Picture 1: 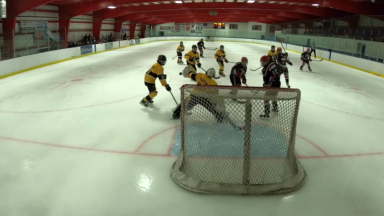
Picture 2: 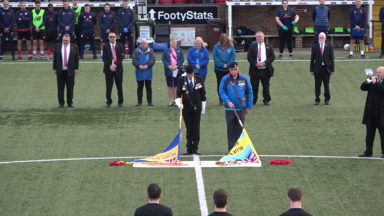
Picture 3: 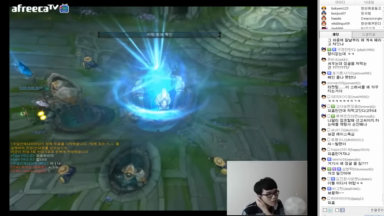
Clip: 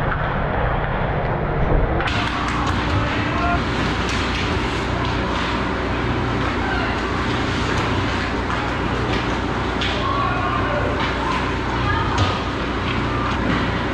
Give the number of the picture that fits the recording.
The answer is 1